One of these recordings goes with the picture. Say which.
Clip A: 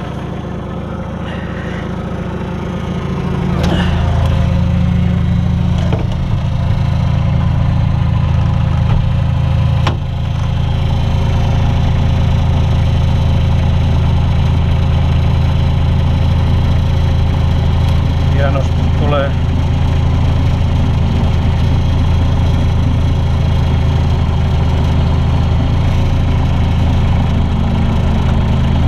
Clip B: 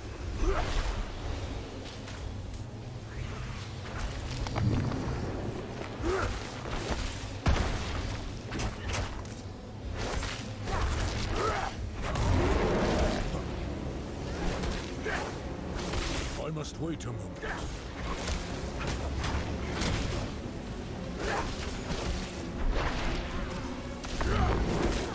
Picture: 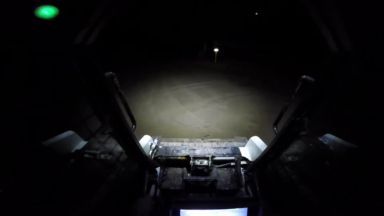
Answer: A